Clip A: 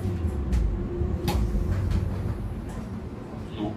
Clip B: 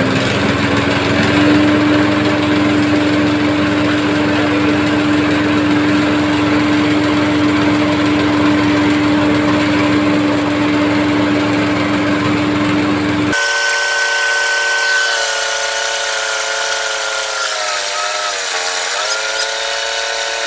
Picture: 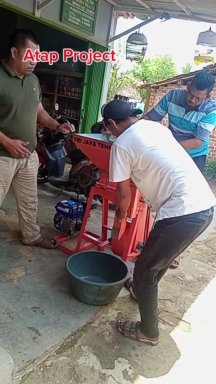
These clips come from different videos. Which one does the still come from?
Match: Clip B